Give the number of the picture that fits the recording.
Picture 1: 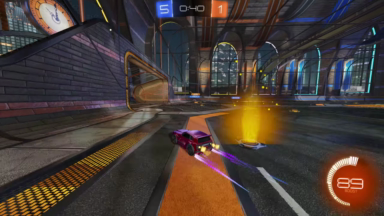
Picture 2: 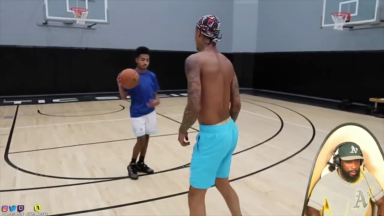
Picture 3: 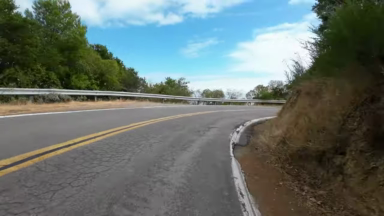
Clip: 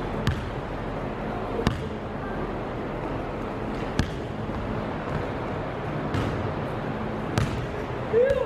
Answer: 2